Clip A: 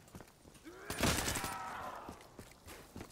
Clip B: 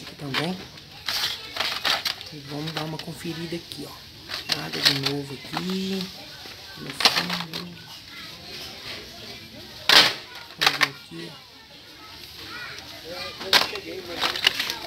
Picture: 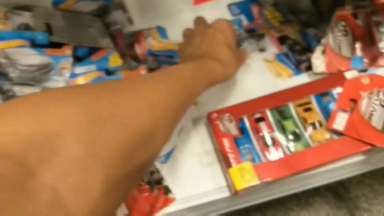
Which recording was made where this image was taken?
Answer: B